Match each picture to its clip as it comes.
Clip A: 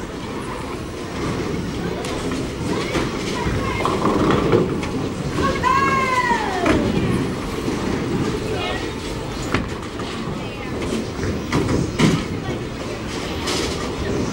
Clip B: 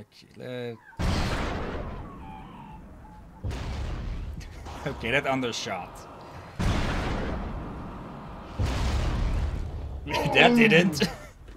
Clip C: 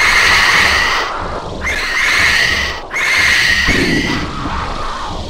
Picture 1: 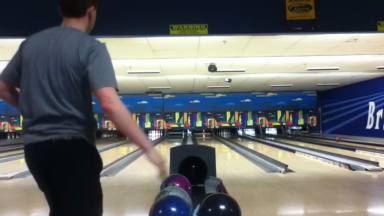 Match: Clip A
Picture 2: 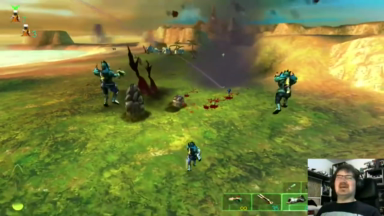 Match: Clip B